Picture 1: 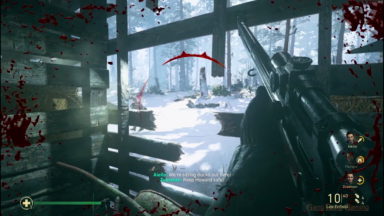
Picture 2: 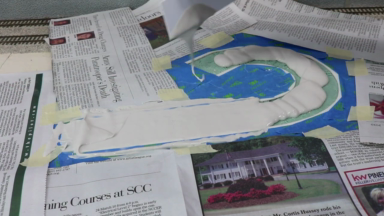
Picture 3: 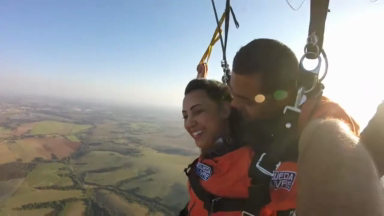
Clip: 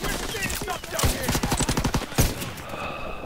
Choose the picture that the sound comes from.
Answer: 1